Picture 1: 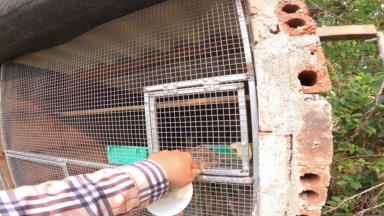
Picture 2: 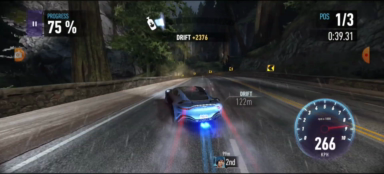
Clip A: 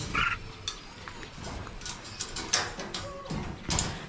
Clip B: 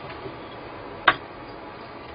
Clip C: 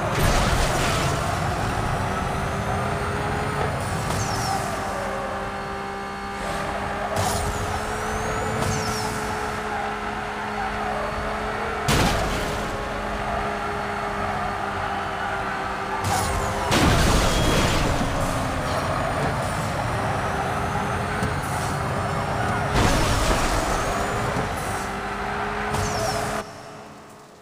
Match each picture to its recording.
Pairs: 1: A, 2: C